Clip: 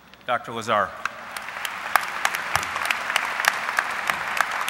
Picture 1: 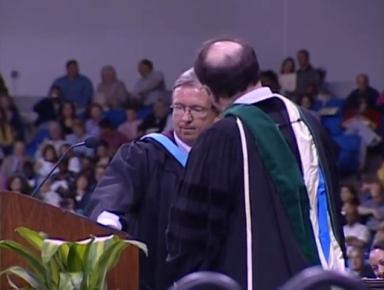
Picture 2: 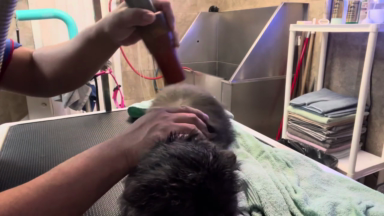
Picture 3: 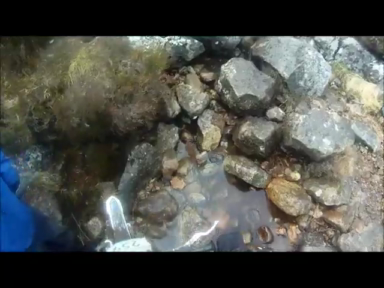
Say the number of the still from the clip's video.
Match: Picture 1